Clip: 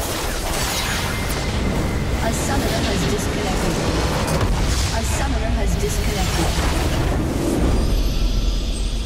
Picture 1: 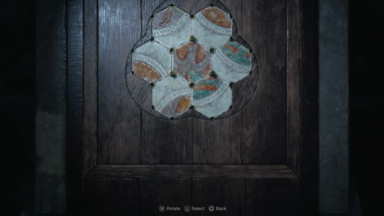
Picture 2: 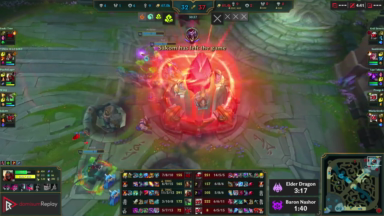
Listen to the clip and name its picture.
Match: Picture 2